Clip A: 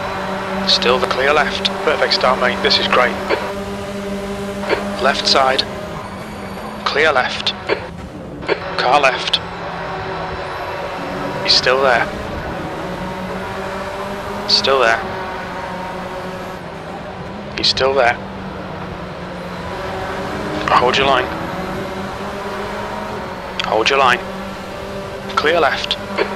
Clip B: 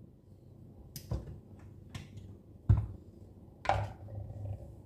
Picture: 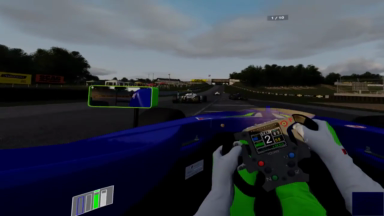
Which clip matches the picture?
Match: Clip A